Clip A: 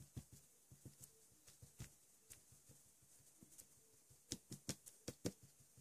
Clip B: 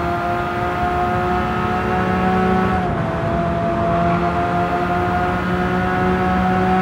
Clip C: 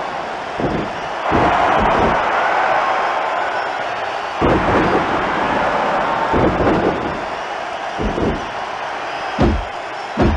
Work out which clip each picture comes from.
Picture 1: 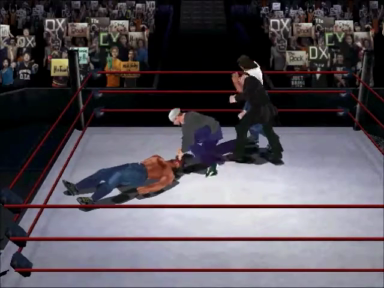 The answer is C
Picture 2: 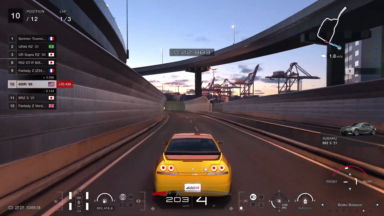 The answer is B